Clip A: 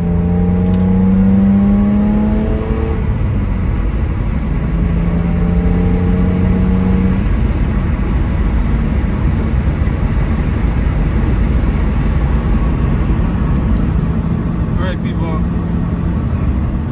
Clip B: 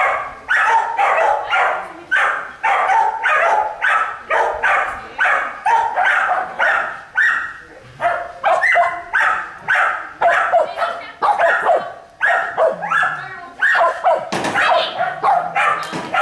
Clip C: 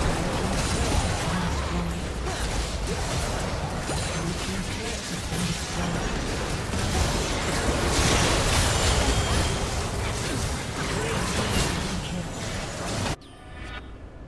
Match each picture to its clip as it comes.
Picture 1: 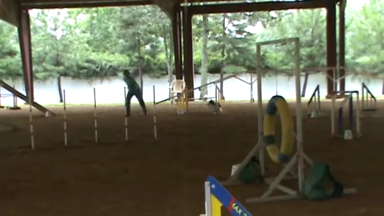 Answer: B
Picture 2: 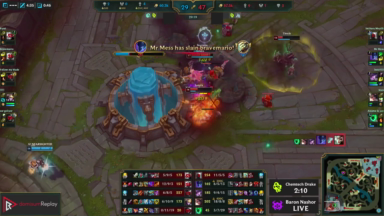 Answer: C